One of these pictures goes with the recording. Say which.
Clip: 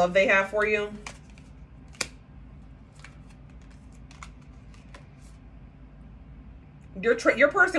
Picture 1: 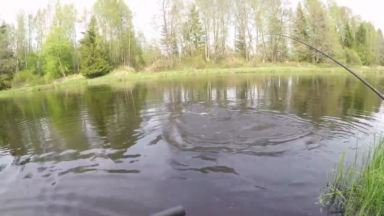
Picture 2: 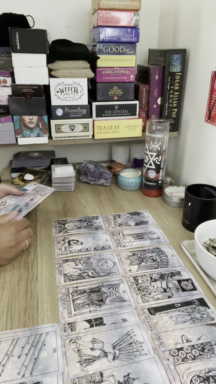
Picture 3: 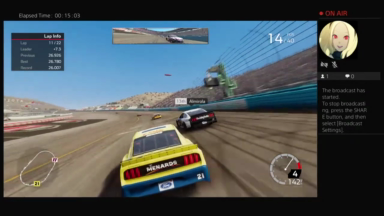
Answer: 2